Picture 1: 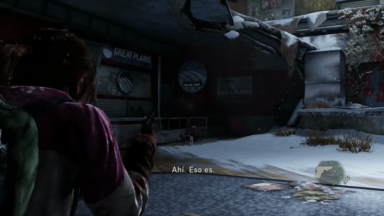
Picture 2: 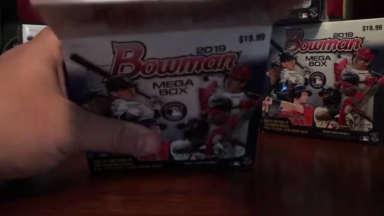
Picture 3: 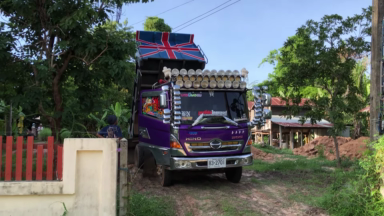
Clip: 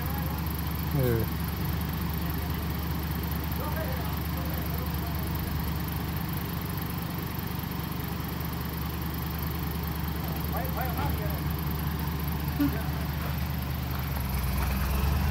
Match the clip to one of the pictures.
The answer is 3